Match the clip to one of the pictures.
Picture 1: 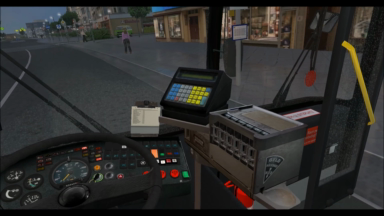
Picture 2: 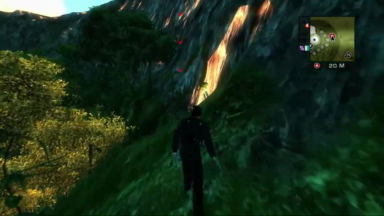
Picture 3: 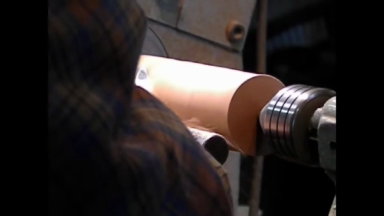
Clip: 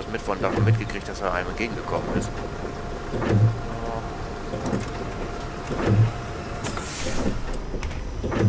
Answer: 1